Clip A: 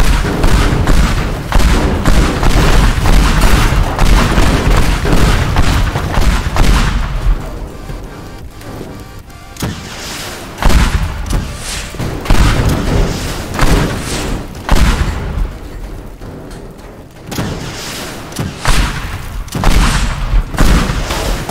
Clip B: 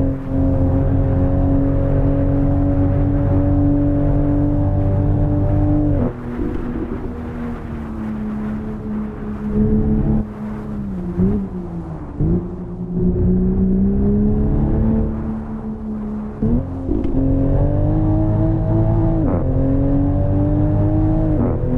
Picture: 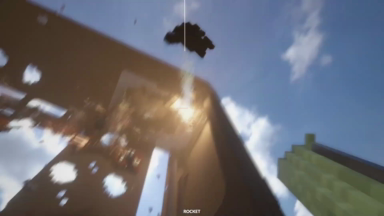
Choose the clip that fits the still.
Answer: A